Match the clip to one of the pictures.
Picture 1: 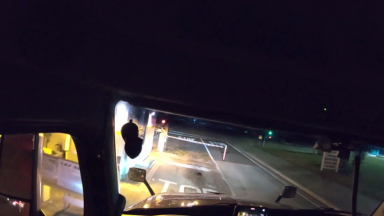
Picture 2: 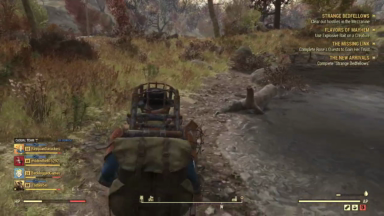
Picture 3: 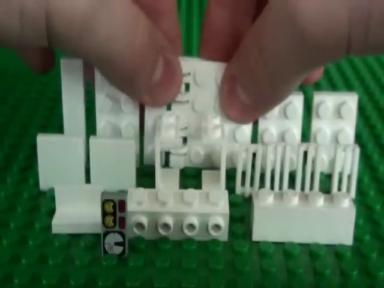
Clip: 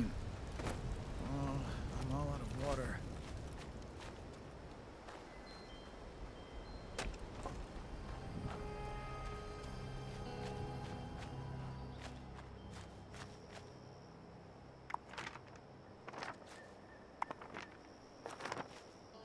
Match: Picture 2